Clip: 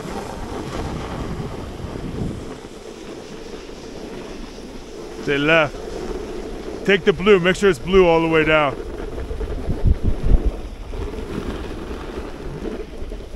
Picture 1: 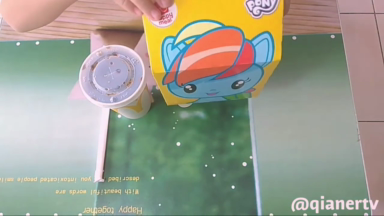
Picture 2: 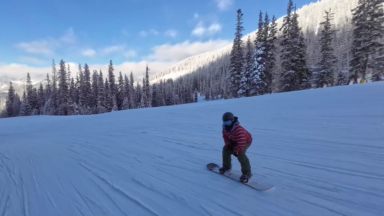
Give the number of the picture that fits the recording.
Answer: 2